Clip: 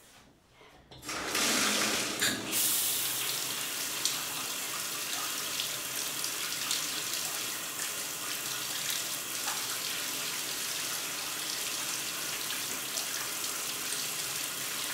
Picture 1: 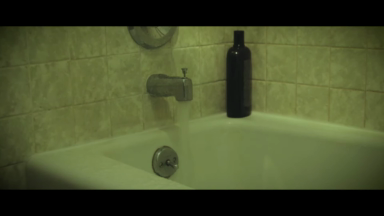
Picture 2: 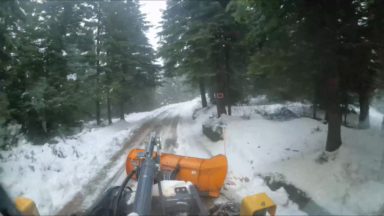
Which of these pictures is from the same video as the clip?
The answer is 1